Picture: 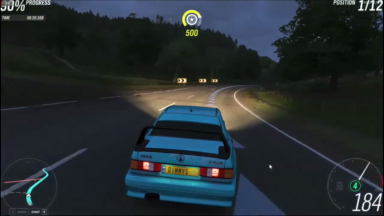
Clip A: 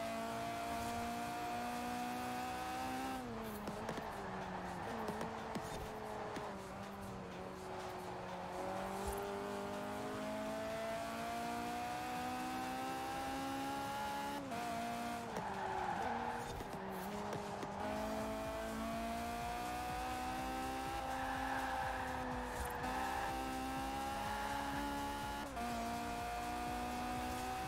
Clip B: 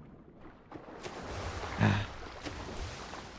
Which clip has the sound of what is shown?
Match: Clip A